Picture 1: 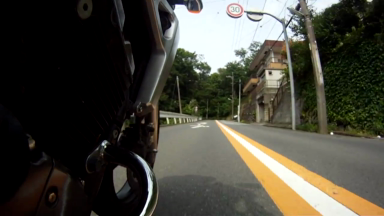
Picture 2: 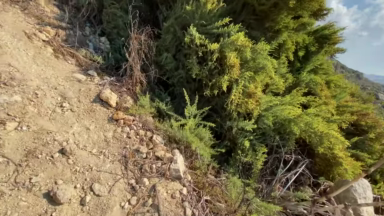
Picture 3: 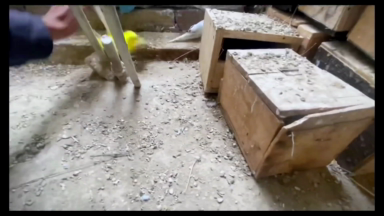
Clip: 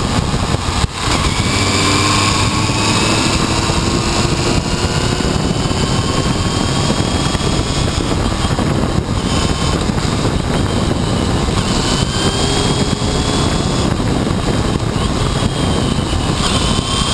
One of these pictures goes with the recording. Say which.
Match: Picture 1